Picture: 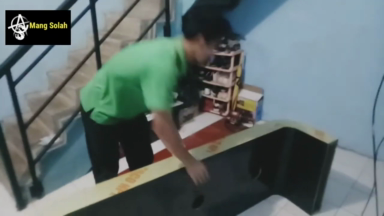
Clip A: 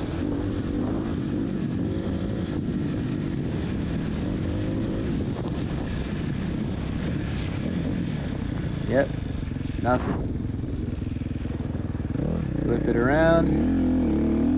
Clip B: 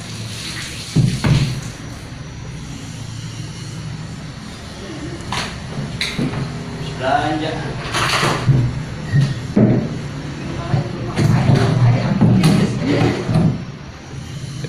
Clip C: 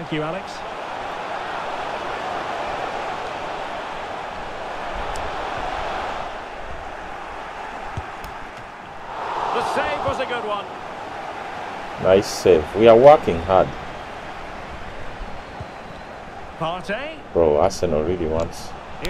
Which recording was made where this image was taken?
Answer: B